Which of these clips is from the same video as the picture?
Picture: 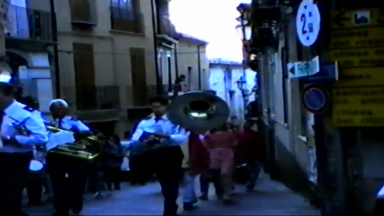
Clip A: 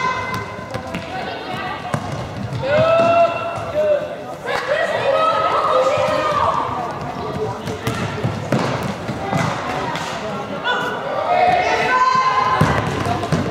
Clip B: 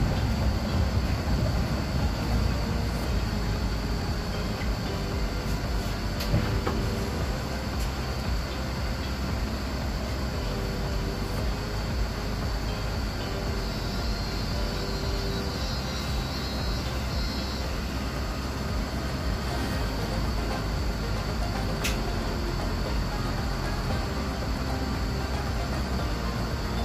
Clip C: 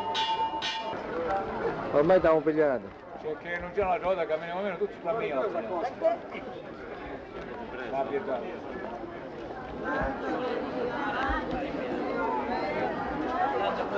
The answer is C